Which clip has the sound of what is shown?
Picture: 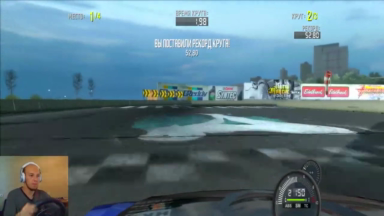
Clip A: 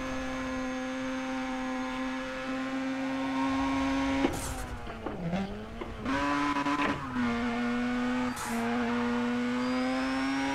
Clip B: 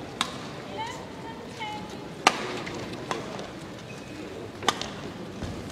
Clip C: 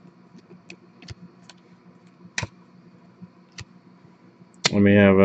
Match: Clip A